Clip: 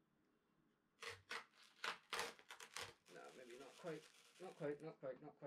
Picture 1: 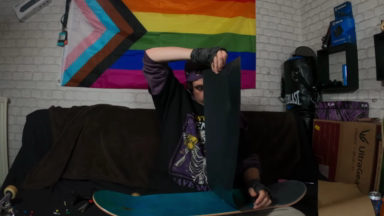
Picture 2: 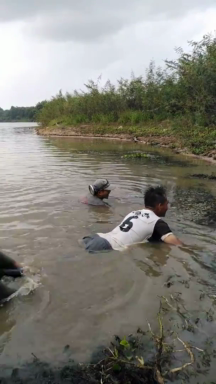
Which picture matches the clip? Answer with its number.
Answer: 1